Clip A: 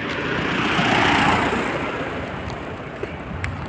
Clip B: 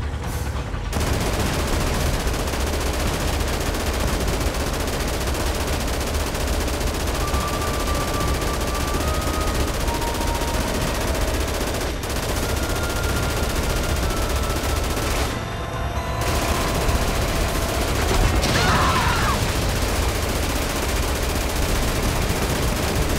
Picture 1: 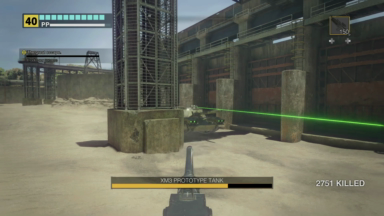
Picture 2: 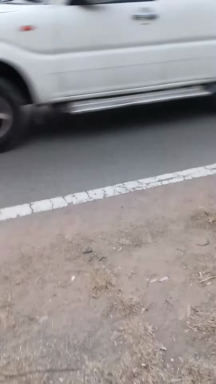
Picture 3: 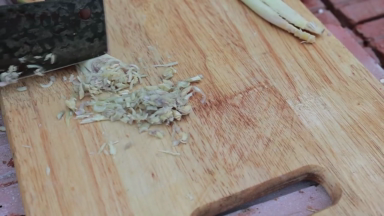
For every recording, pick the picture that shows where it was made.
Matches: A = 2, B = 1